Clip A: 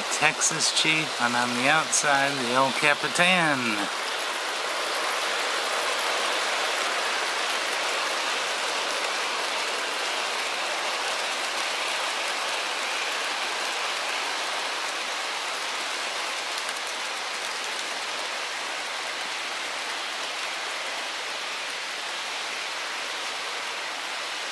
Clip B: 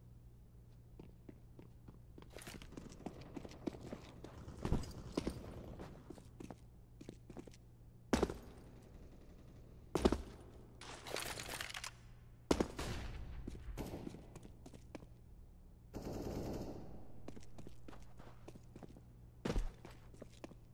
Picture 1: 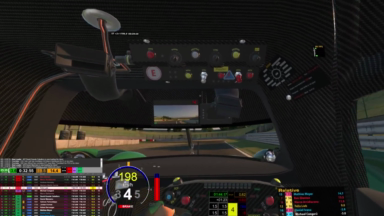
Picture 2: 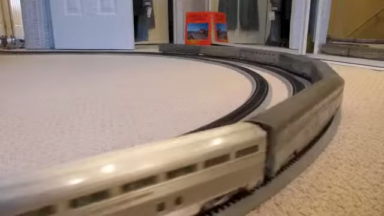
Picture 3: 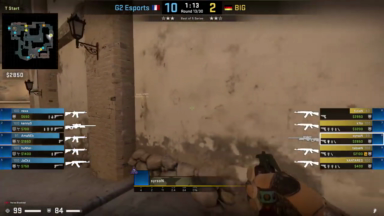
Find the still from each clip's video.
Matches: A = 2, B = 3